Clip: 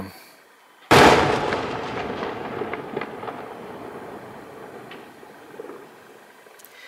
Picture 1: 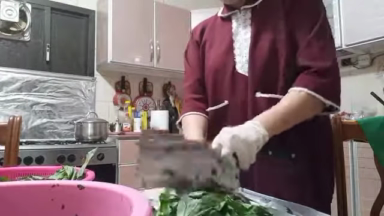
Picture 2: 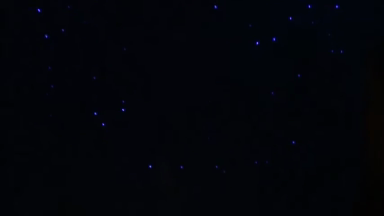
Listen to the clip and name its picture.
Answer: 2